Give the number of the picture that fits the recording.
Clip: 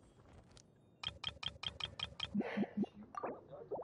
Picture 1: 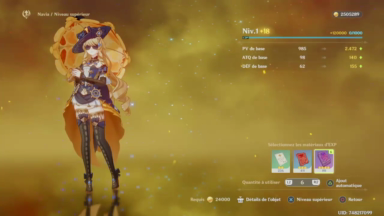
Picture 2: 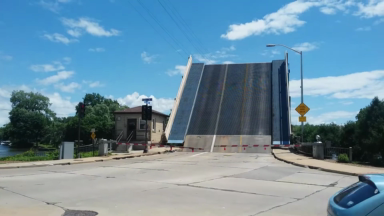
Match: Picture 1